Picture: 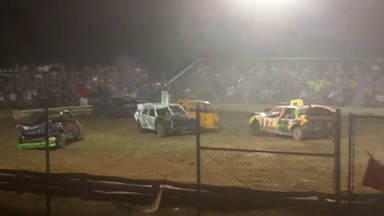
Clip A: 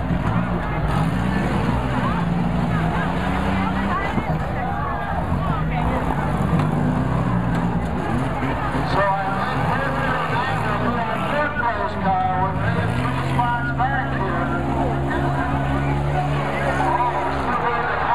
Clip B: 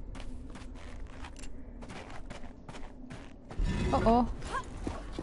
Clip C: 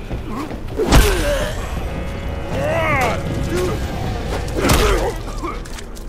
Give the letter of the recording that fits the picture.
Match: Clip A